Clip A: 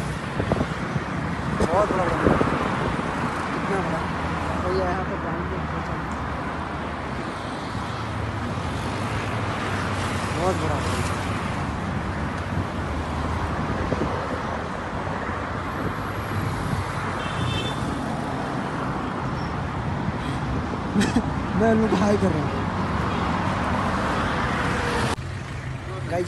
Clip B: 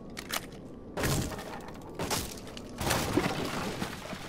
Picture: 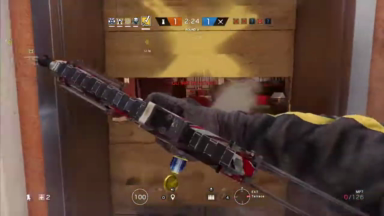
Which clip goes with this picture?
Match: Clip B